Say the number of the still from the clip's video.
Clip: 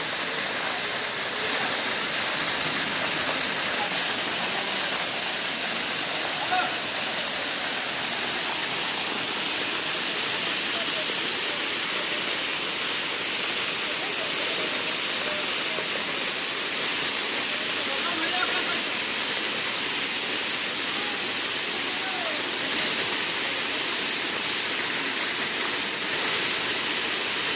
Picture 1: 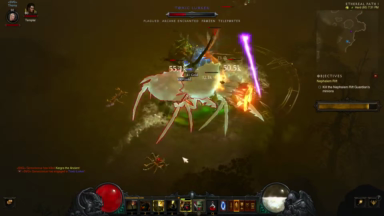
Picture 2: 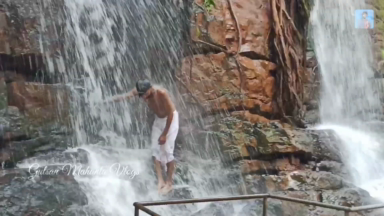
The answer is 2